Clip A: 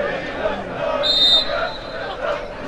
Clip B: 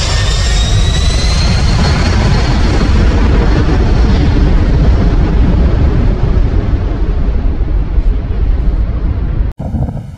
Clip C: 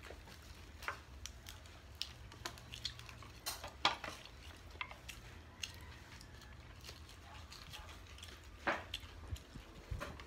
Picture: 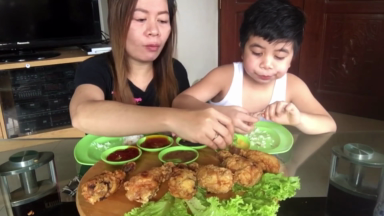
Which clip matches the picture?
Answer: C